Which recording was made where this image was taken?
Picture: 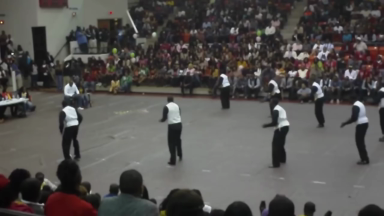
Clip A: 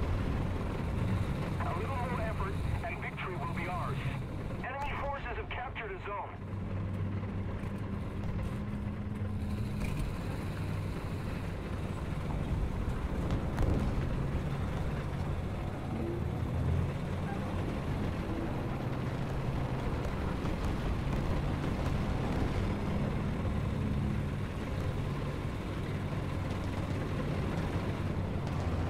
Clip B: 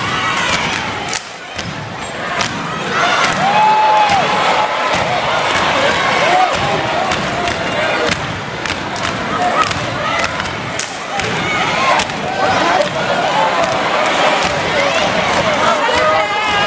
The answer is B